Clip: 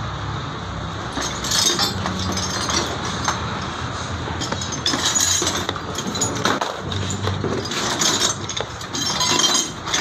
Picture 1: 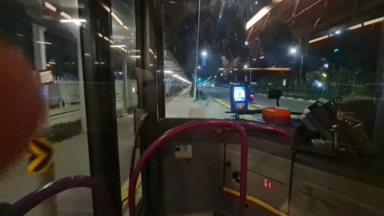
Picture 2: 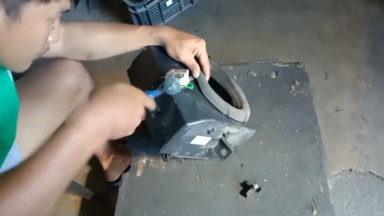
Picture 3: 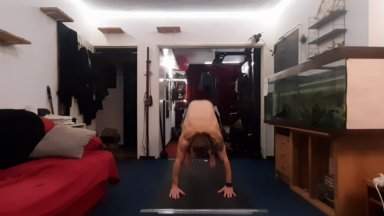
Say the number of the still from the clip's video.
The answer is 2